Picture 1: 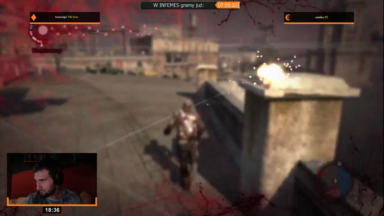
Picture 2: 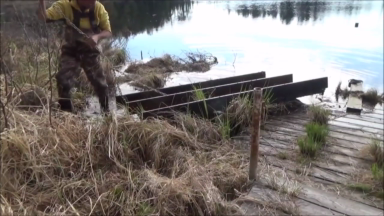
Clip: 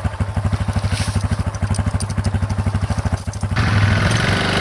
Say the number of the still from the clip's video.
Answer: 2